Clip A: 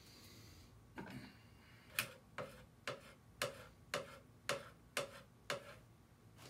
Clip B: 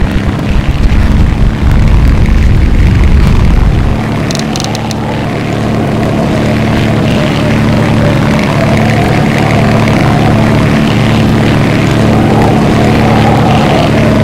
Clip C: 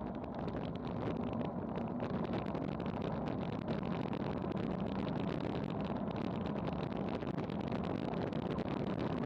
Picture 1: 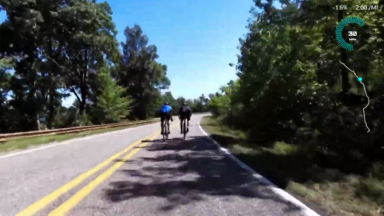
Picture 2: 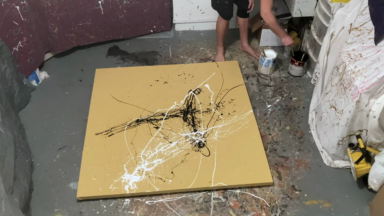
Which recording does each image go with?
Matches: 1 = C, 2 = A